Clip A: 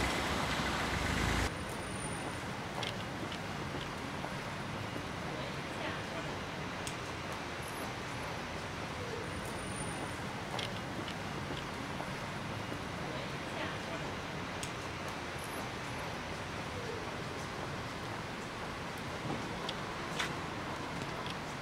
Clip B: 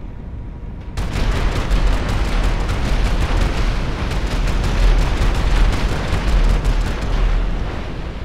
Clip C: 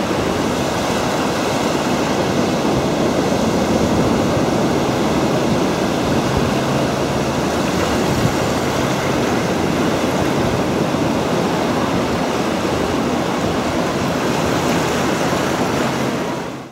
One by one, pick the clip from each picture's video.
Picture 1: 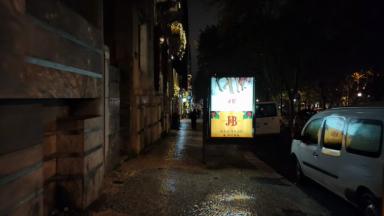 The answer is A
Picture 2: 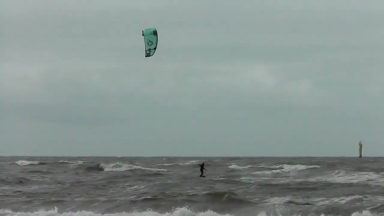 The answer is C